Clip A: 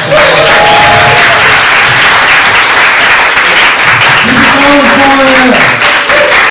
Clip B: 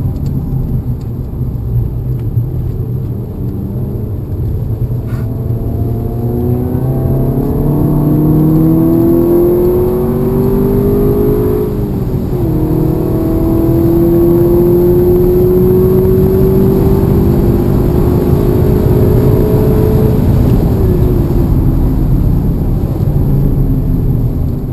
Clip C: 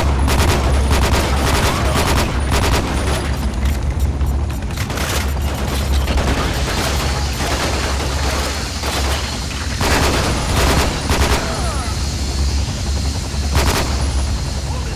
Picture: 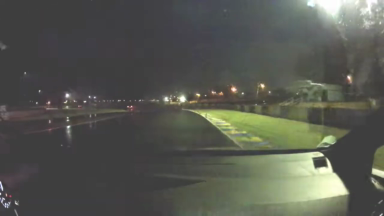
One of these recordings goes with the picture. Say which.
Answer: B